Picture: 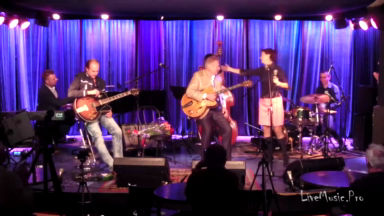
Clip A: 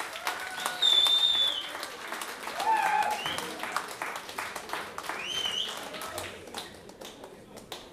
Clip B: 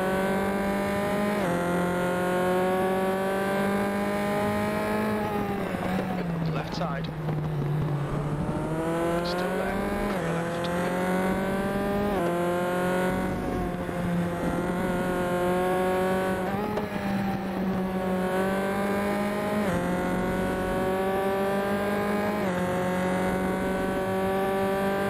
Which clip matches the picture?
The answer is A